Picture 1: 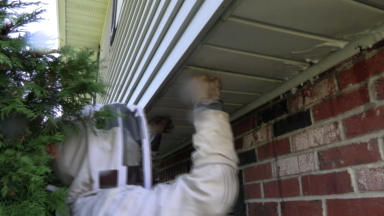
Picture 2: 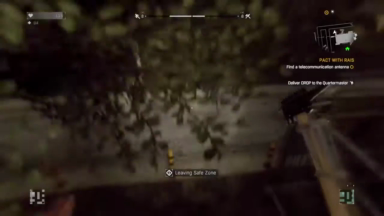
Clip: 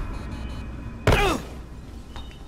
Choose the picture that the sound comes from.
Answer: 2